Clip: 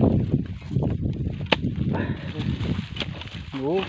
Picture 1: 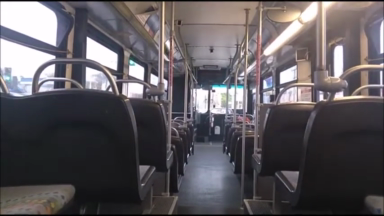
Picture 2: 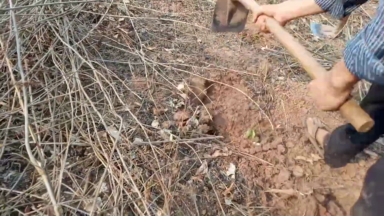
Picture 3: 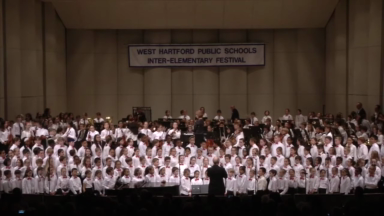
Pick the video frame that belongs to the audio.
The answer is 2